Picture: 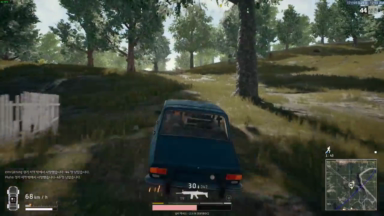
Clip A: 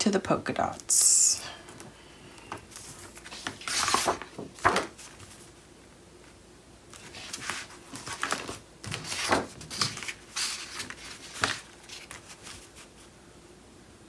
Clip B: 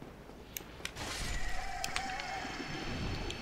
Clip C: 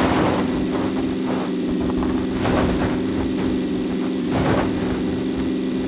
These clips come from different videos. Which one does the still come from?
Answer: C